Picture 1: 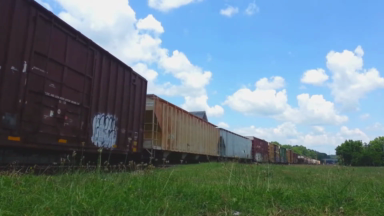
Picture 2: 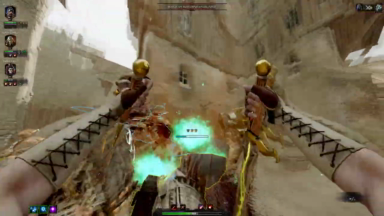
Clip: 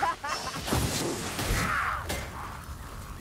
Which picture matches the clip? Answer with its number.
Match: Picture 2